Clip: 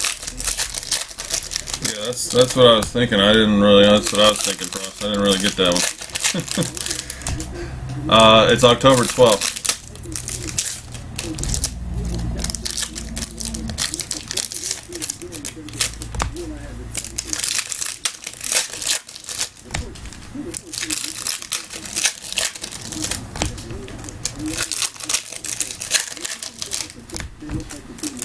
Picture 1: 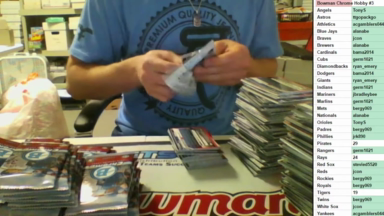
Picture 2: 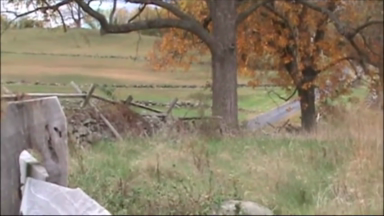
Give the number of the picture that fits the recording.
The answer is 1